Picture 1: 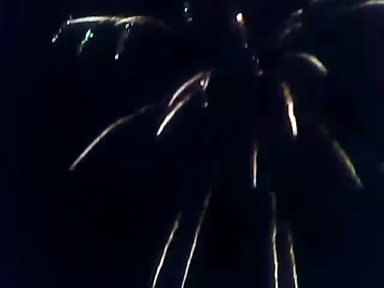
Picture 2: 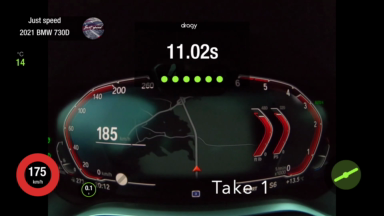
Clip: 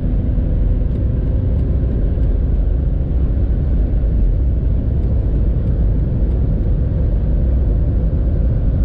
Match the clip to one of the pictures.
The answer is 2